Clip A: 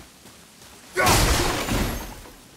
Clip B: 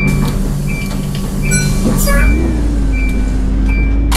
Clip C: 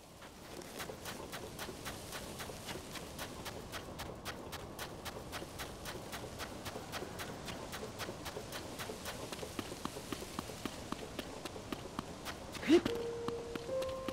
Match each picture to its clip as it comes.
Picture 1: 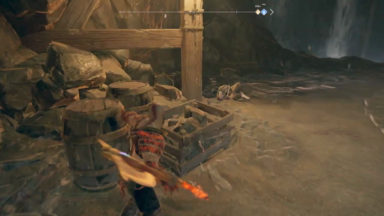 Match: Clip A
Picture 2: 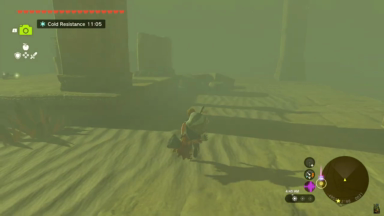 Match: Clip C